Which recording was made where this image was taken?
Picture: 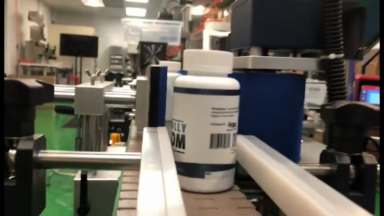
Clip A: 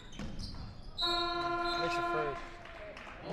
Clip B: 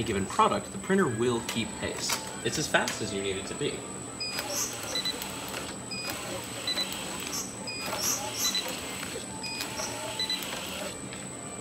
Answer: B